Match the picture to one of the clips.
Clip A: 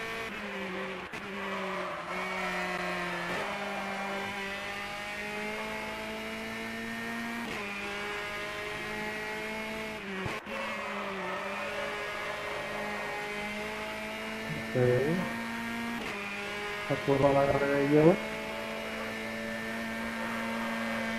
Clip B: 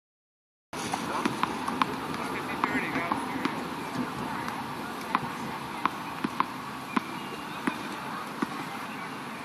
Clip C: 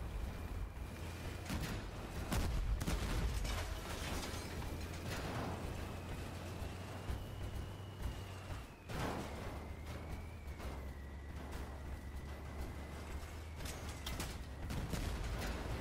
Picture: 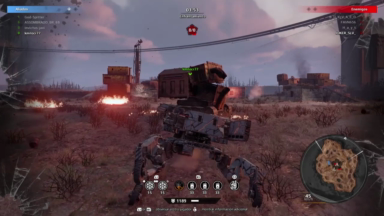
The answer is C